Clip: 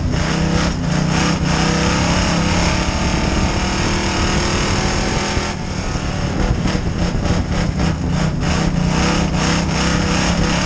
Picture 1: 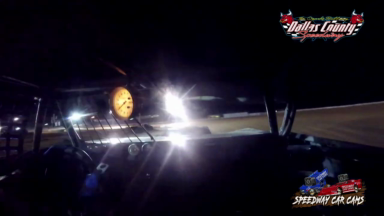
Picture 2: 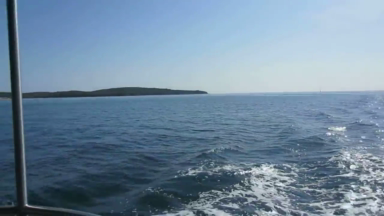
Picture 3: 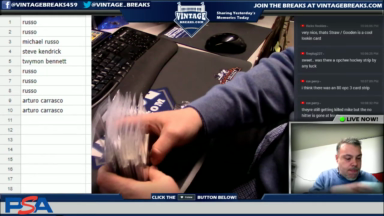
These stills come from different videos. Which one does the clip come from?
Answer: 1